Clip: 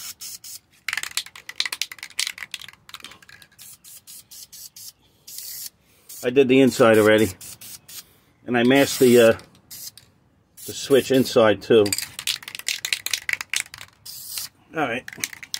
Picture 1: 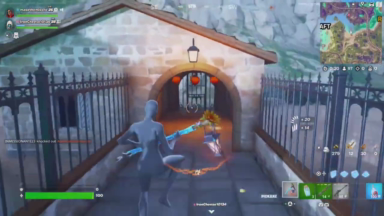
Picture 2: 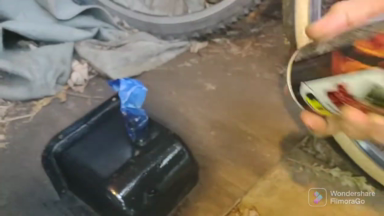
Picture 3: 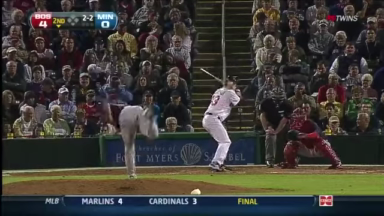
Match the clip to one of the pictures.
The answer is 2